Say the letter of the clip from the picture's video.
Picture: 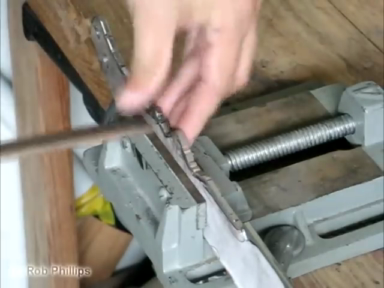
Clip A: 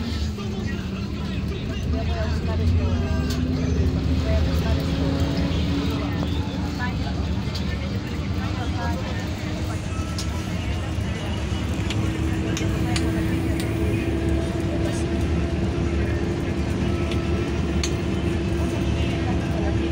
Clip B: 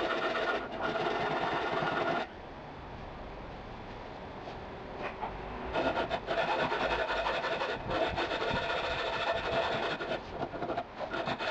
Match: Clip B